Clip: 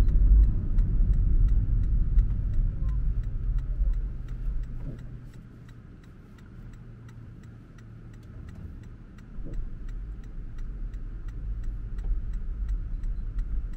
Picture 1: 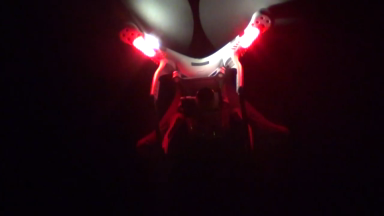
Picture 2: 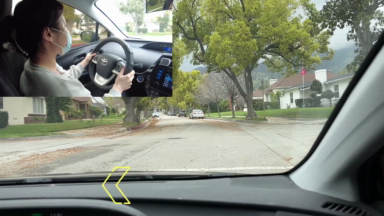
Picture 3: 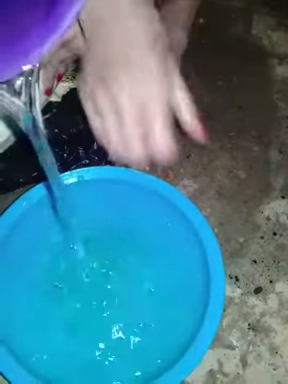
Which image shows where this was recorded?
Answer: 2